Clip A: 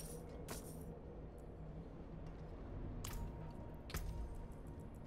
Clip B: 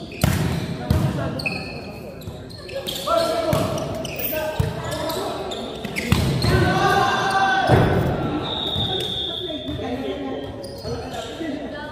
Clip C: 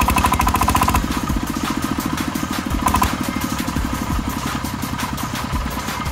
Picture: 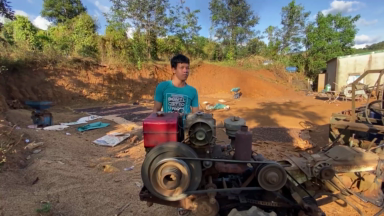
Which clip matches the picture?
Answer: C